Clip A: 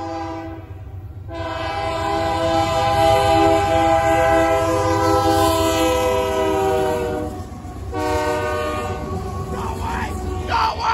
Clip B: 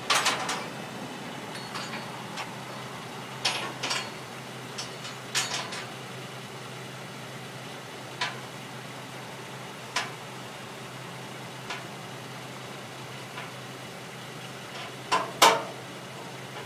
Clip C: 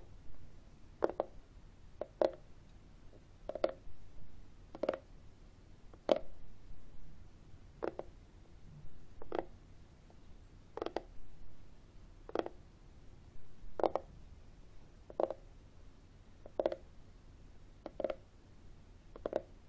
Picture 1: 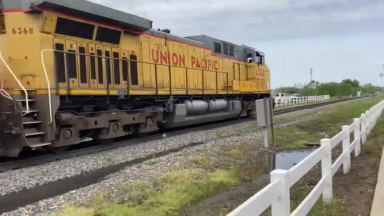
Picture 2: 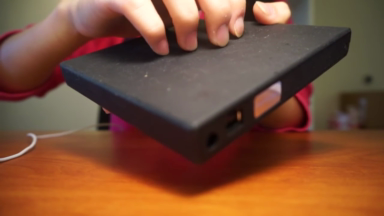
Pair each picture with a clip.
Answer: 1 A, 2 C